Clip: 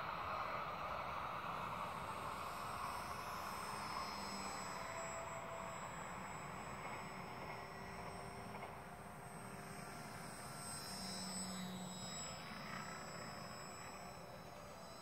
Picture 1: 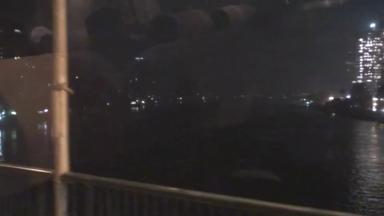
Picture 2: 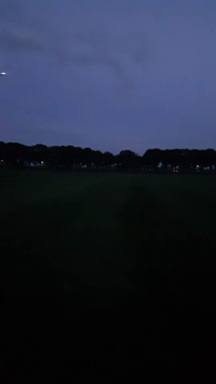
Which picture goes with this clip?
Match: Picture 2